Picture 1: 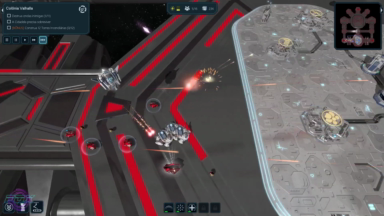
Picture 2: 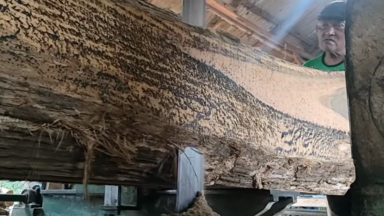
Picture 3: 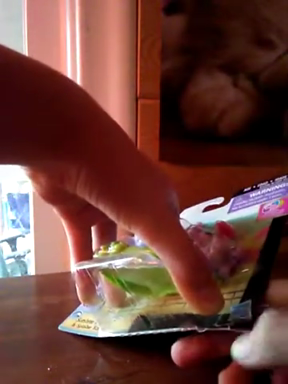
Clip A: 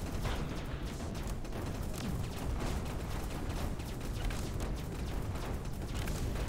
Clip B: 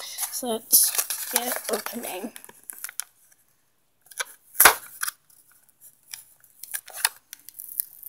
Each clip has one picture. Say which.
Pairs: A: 1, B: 3